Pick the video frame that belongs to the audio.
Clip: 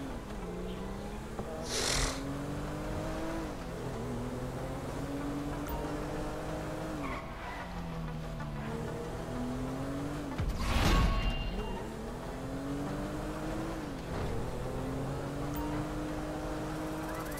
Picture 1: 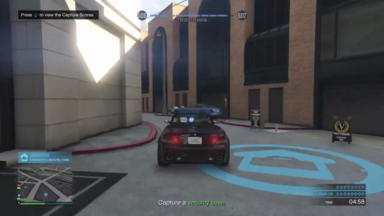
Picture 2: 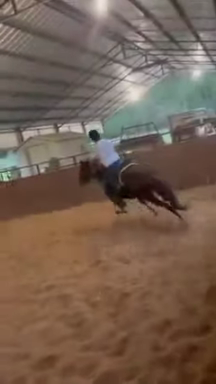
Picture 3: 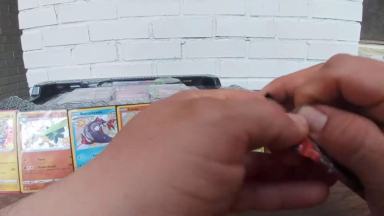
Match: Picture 1